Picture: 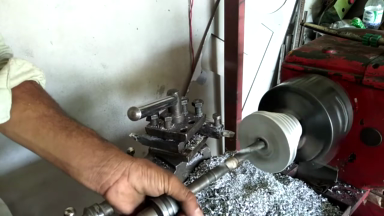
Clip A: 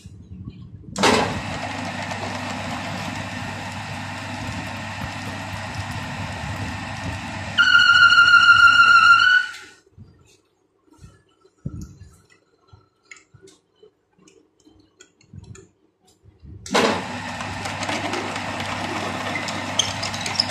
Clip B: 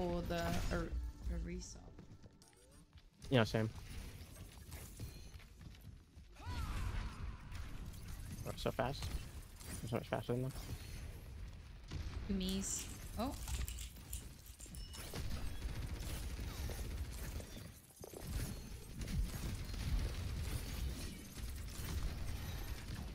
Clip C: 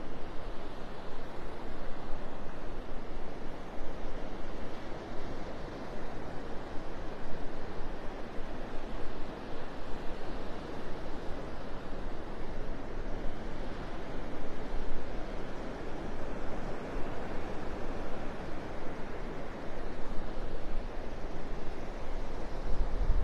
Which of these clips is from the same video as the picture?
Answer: A